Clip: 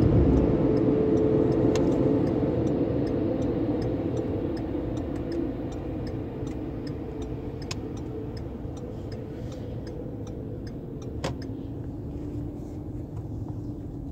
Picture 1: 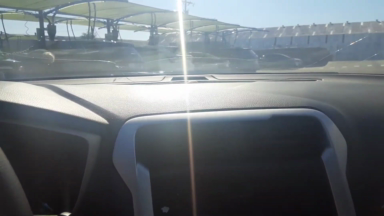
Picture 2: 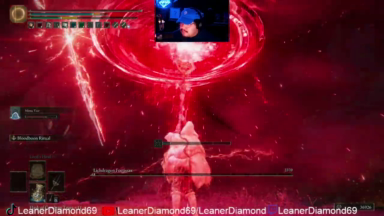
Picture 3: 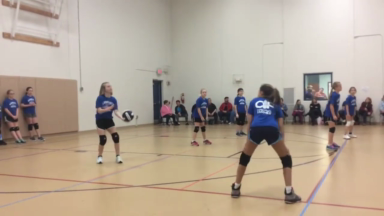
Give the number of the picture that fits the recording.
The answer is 1